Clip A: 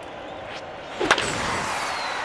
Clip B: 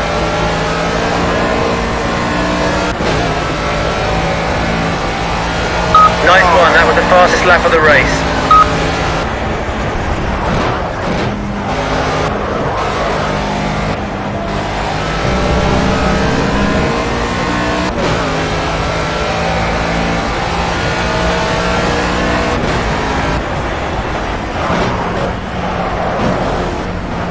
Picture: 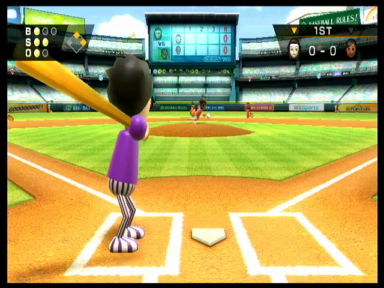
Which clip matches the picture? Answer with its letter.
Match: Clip A